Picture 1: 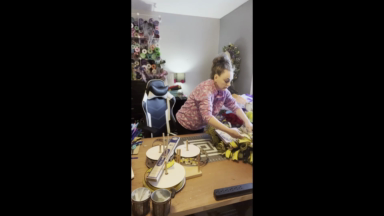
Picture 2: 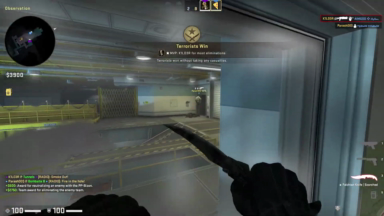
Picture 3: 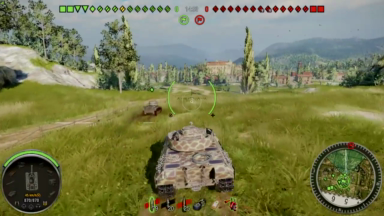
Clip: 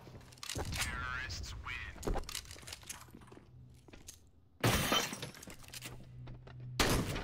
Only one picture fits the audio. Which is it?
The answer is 2